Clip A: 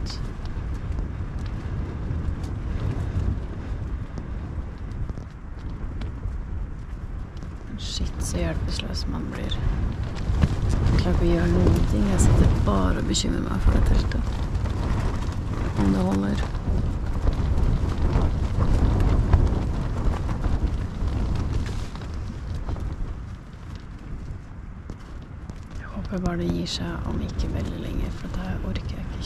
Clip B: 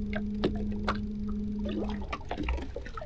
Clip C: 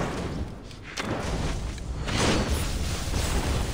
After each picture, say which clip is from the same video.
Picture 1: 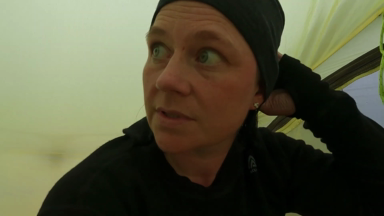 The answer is A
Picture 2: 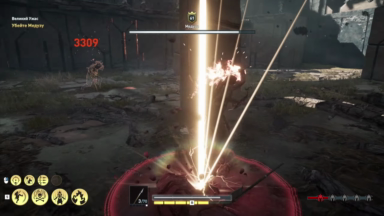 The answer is C